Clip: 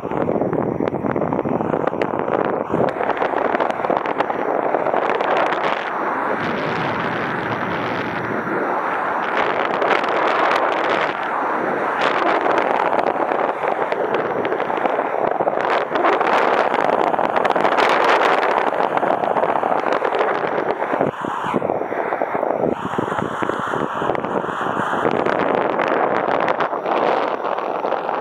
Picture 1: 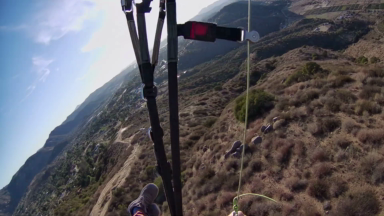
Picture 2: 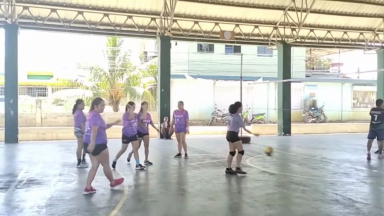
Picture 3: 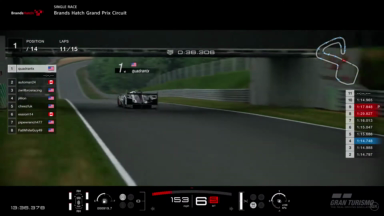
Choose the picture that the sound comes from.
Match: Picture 1